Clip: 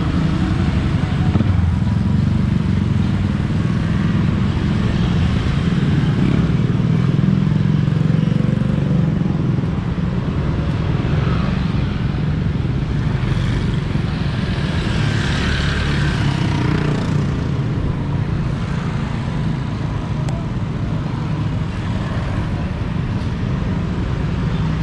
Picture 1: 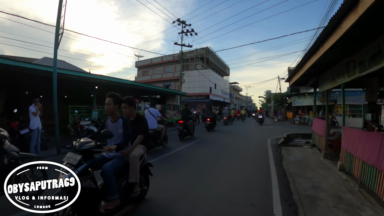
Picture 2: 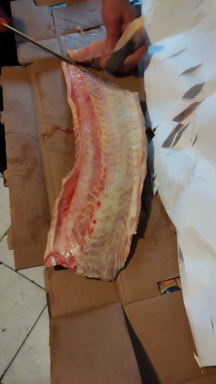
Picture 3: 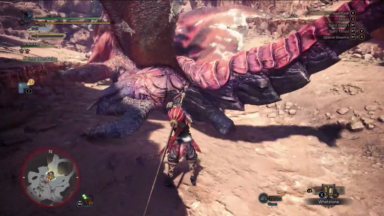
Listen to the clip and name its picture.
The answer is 1